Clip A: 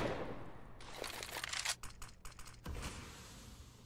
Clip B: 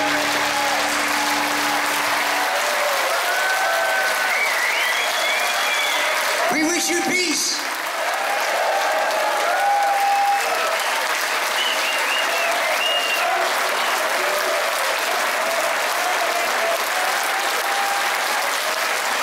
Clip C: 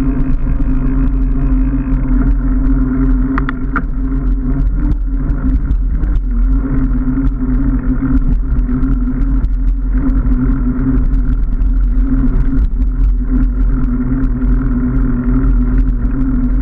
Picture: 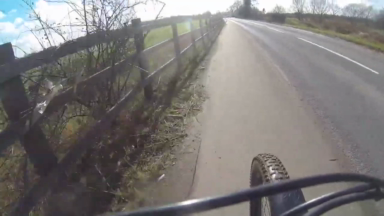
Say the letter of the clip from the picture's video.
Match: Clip C